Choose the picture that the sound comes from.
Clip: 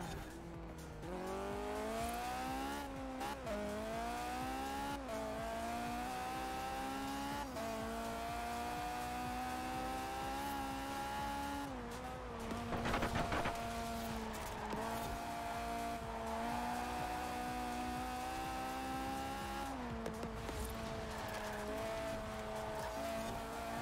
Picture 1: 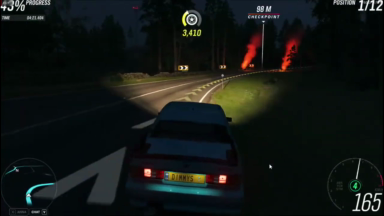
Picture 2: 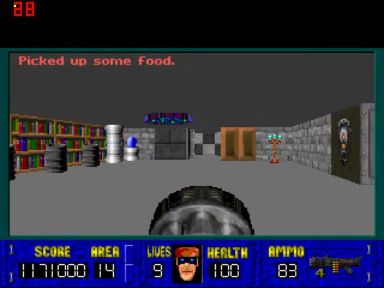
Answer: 1